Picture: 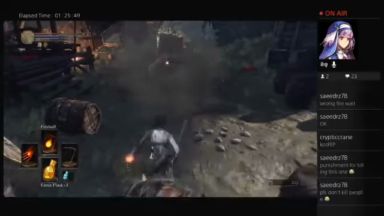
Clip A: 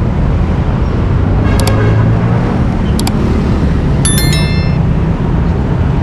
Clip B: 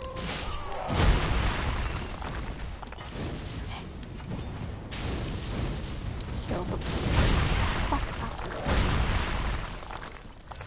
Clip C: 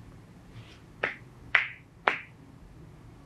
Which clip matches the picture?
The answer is B